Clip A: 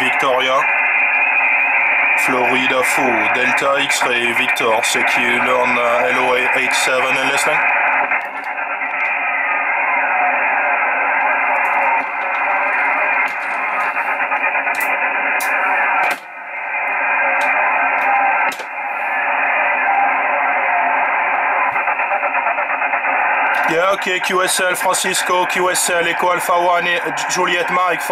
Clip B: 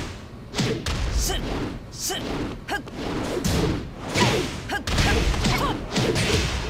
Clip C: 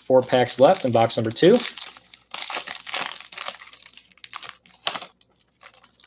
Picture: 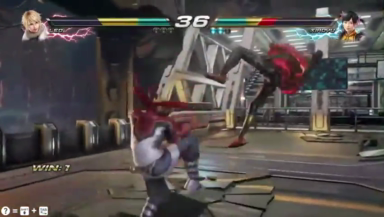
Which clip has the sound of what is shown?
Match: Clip B